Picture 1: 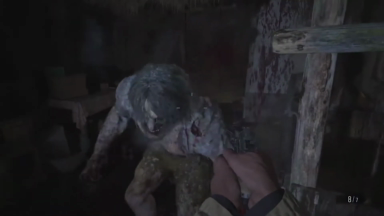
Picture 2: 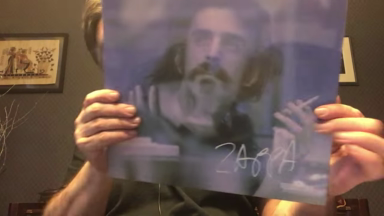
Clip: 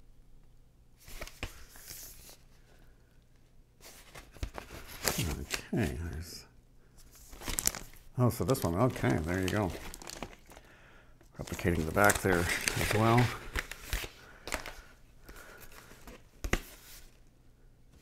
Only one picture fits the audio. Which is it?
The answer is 2